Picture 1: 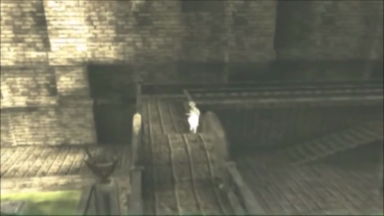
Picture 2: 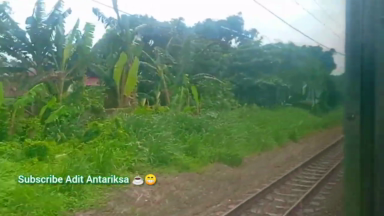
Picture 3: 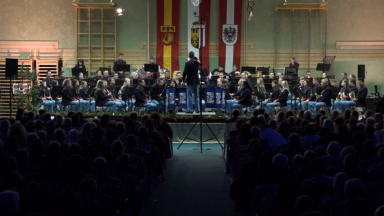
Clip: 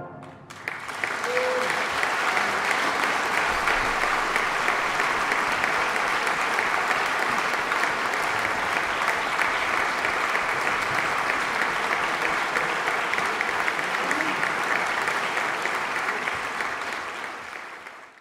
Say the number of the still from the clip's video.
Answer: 3